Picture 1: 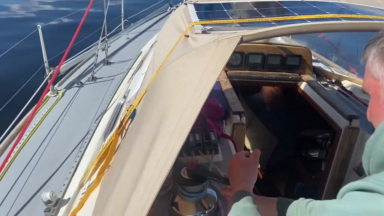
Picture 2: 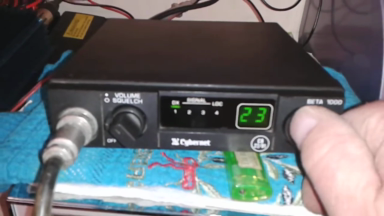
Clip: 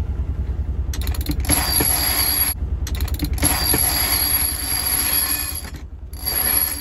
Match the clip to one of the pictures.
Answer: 1